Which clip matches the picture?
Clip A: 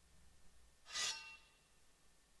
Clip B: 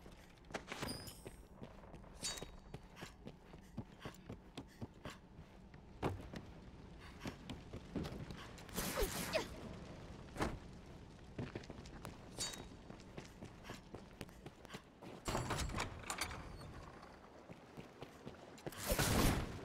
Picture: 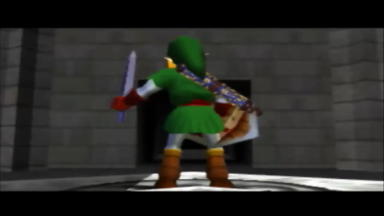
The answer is A